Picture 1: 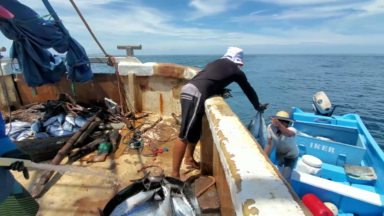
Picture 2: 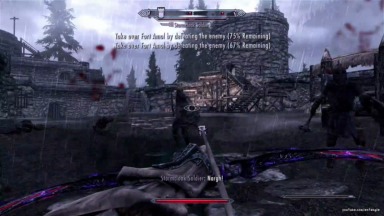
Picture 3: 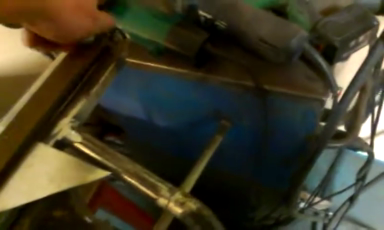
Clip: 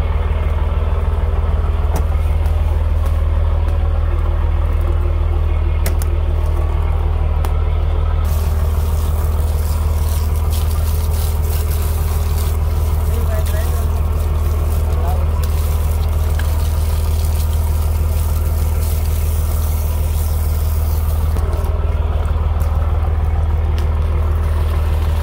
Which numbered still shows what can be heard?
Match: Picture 1